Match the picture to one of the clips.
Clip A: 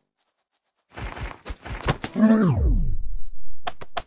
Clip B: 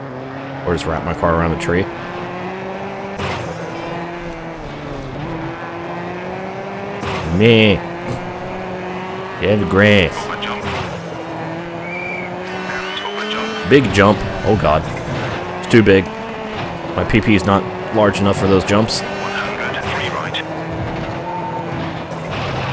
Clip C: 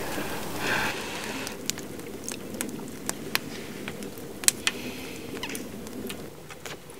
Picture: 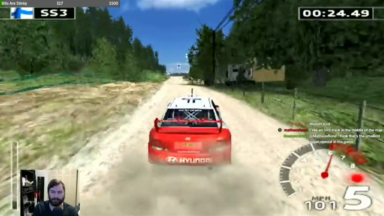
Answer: B